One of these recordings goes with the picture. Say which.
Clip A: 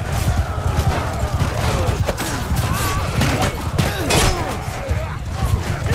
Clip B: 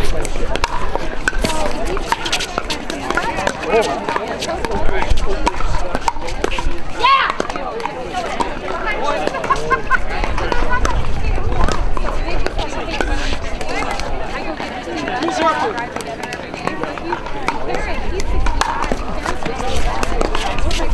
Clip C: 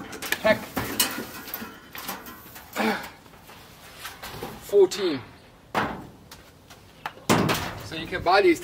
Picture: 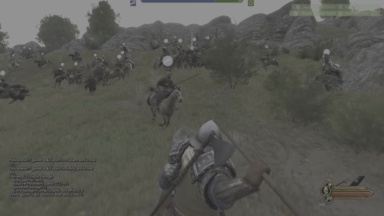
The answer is A